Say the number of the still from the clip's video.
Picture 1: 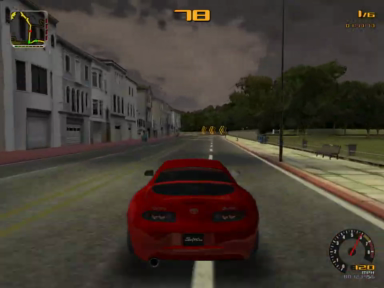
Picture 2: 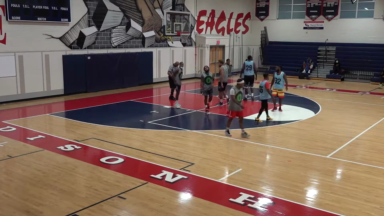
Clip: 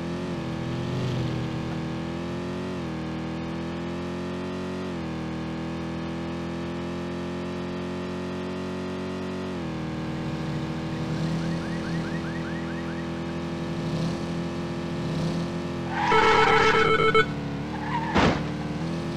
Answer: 1